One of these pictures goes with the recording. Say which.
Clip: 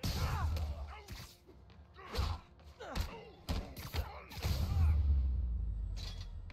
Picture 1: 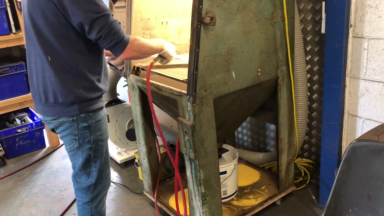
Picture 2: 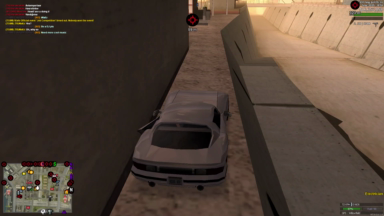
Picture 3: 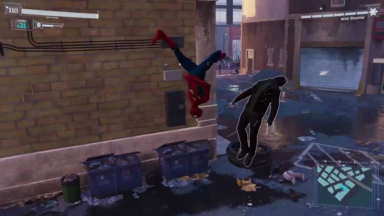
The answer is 3